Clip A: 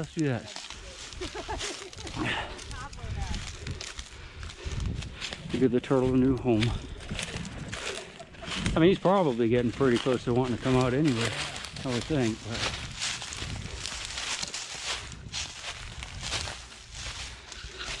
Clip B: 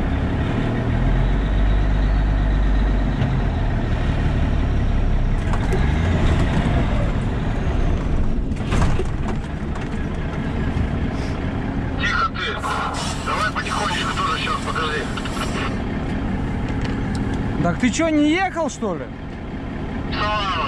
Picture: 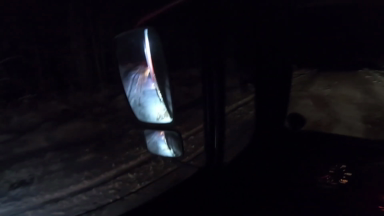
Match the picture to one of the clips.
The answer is B